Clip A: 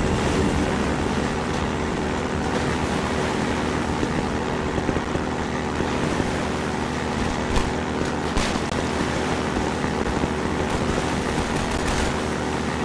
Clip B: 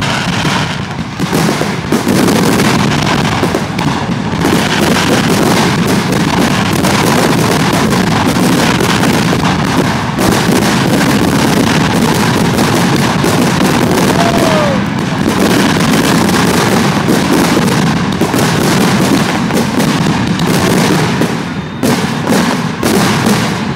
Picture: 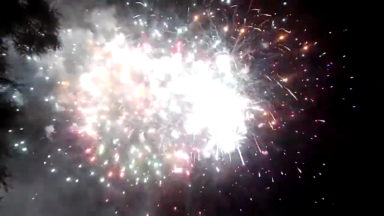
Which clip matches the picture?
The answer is B